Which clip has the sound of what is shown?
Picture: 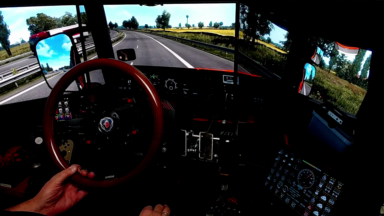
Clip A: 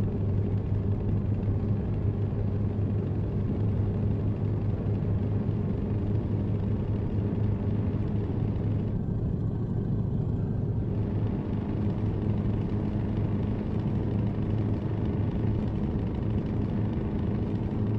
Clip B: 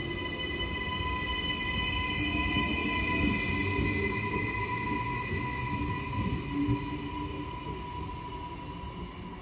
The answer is A